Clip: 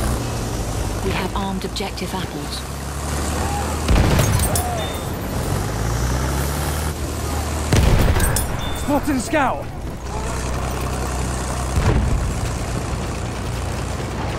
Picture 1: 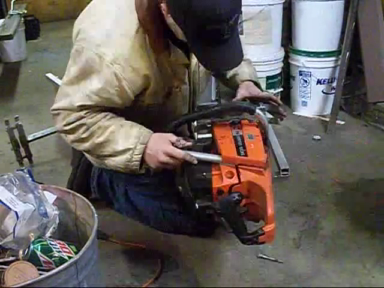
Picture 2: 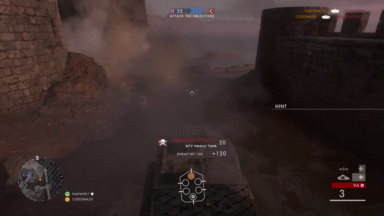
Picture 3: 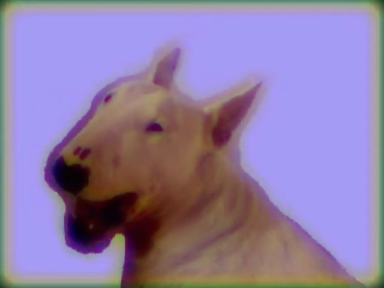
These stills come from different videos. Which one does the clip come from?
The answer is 2